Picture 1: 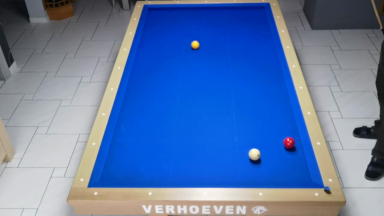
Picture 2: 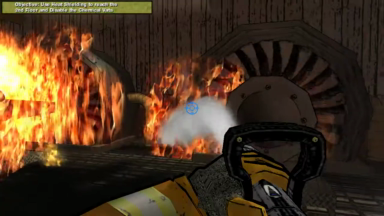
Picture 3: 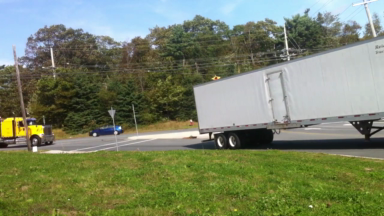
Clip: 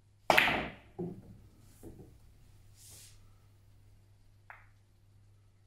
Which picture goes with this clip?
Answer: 1